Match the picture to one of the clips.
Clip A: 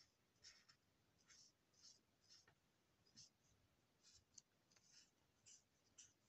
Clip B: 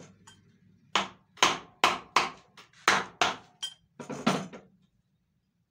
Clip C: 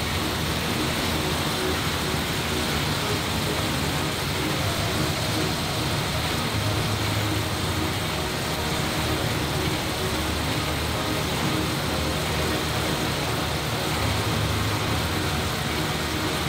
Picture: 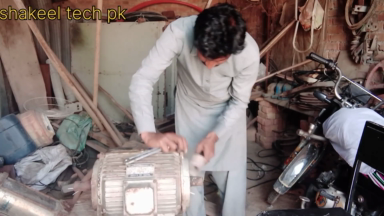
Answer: B